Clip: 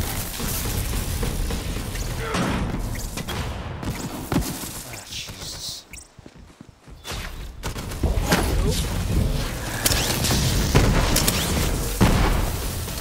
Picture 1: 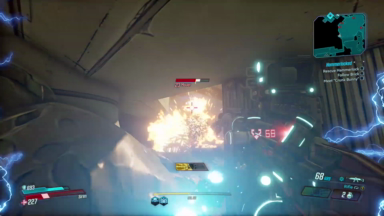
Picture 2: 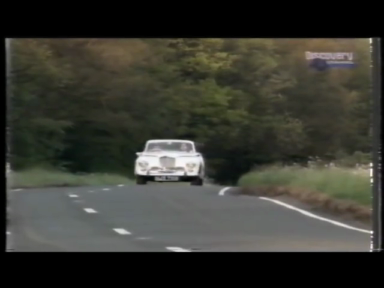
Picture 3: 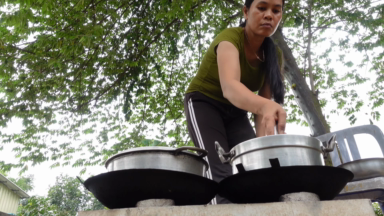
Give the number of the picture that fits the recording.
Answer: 1